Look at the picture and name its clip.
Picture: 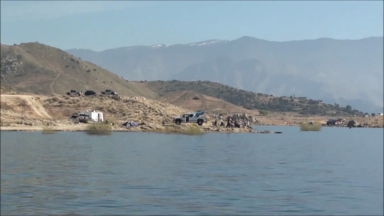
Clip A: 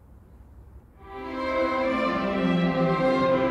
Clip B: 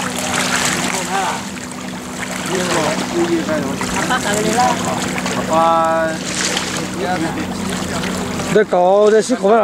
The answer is B